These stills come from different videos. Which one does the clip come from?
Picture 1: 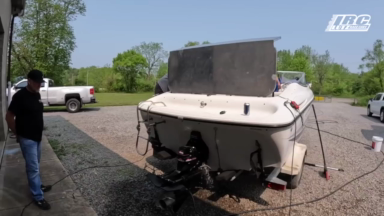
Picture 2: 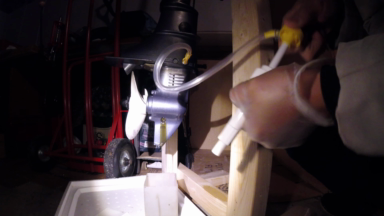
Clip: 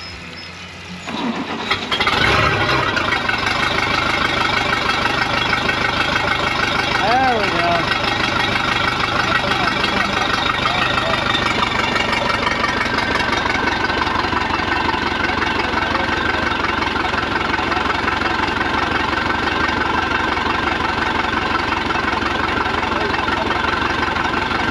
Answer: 1